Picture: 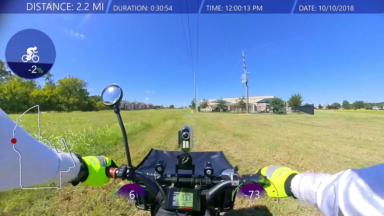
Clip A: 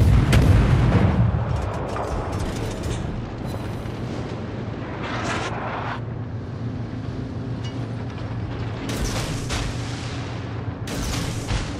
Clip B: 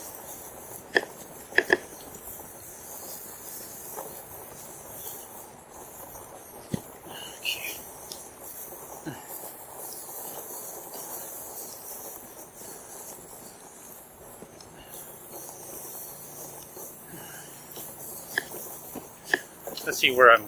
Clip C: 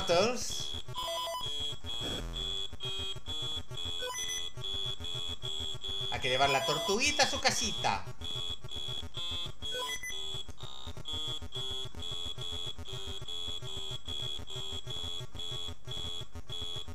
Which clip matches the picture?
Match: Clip B